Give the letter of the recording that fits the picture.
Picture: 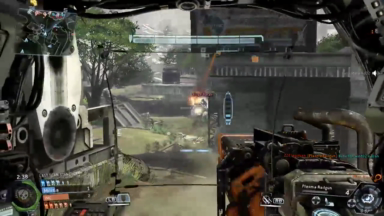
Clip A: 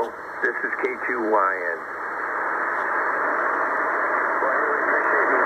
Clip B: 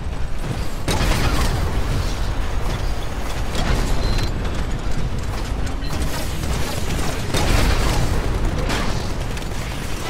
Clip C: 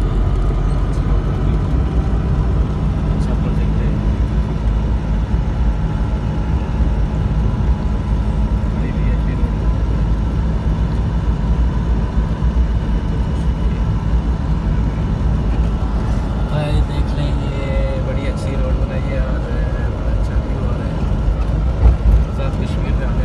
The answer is B